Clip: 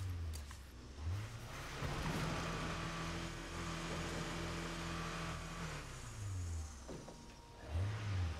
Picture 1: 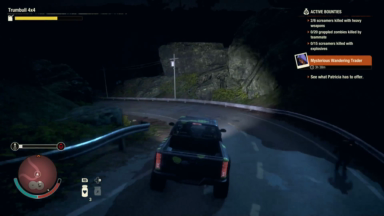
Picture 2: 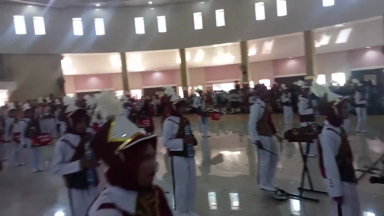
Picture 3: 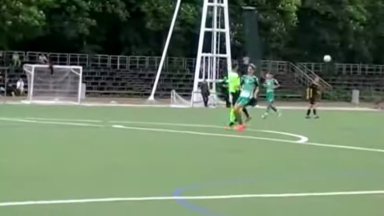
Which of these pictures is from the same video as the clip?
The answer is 1